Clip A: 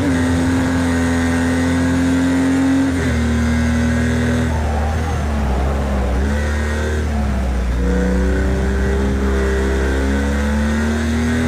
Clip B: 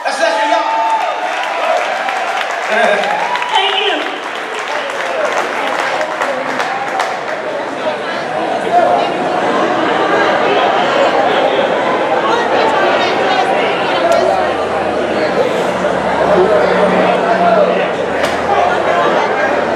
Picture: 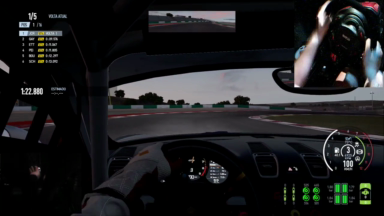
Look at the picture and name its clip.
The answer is A